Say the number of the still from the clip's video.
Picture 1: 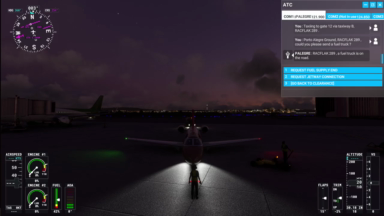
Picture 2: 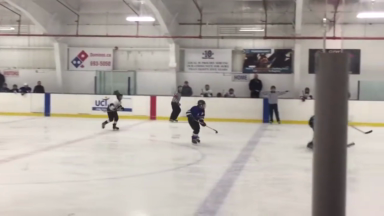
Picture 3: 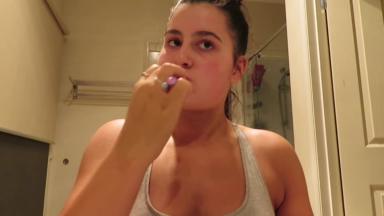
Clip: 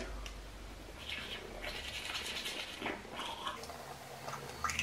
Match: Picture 3